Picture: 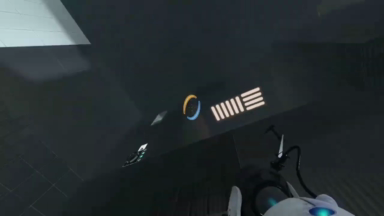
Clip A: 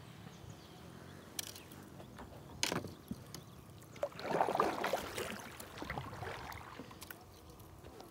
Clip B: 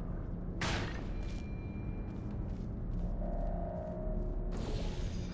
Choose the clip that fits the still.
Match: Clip B